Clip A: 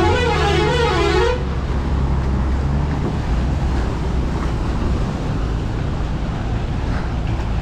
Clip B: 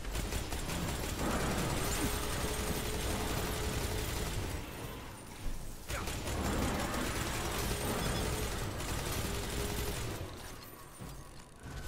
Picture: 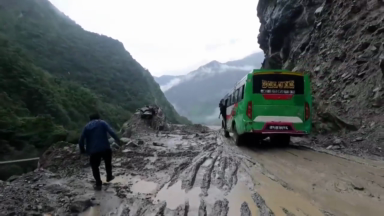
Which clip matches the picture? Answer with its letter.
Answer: A